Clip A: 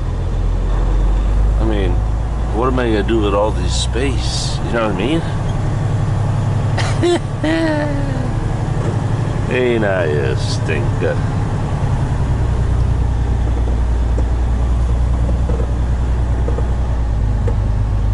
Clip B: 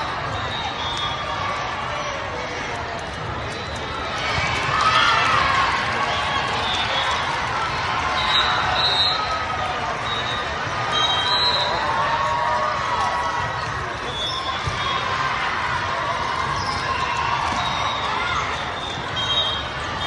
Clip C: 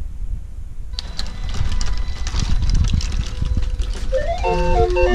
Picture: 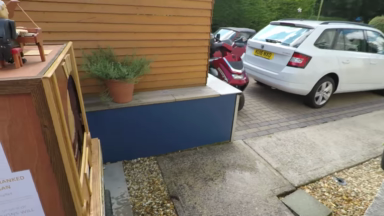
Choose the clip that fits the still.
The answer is C